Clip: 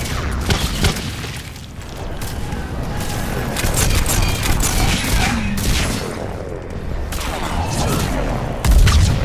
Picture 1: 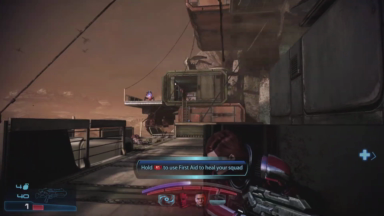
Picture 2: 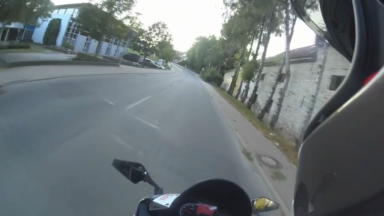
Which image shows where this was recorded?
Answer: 1